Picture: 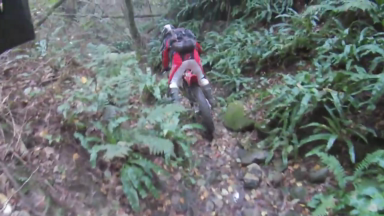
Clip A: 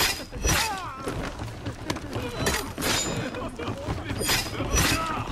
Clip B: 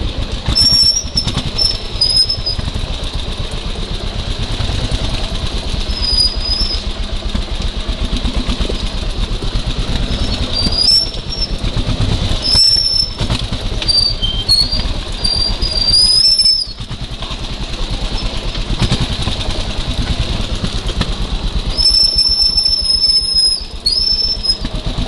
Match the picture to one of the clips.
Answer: B